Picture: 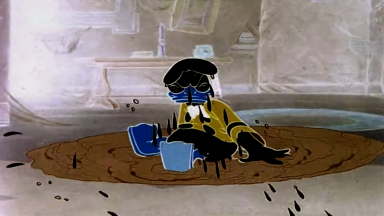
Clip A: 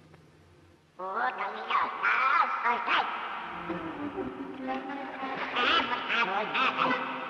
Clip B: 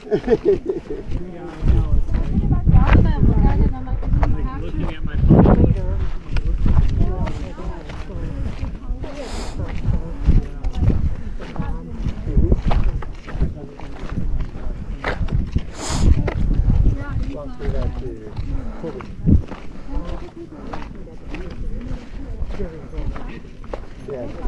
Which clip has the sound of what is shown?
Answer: A